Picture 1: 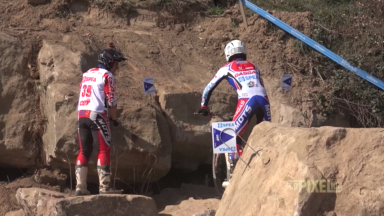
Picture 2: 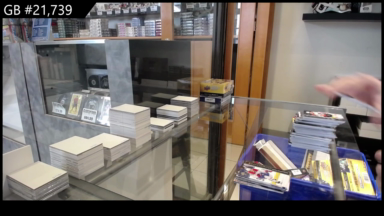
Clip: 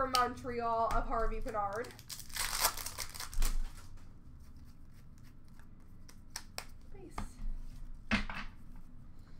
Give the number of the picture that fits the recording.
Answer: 2